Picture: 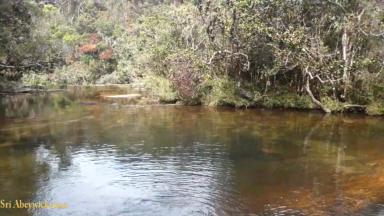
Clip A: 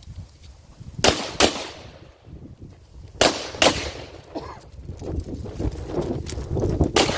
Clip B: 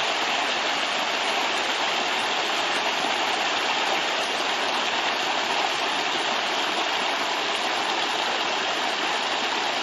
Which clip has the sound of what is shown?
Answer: B